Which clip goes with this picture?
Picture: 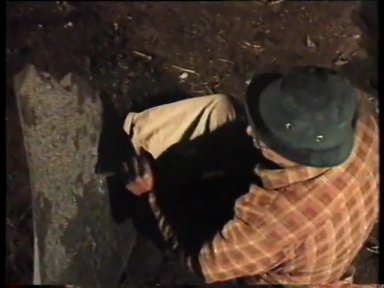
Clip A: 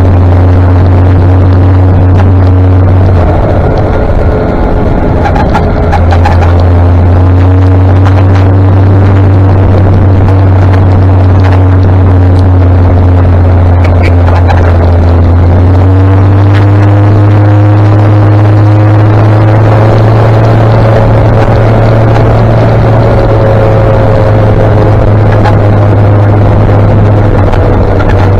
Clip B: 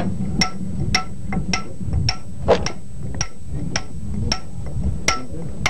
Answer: B